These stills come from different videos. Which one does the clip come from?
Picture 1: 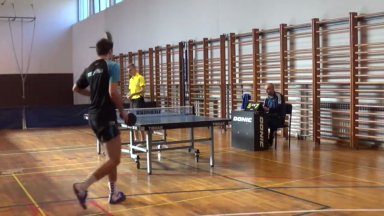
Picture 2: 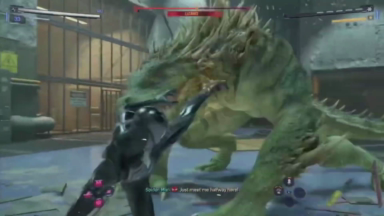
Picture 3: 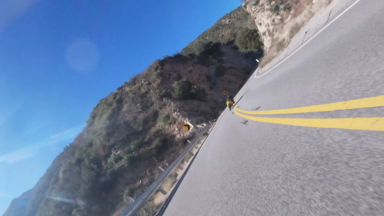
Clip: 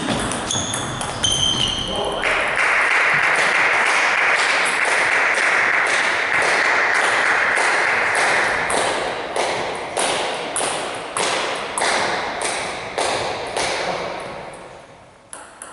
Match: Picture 1